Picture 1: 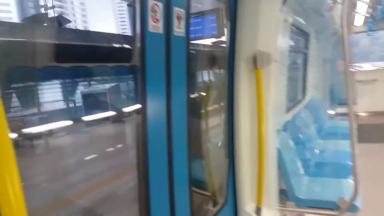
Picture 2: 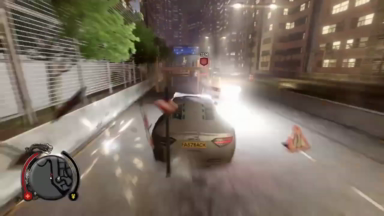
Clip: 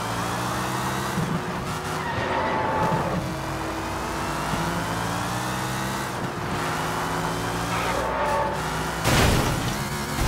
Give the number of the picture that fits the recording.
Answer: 2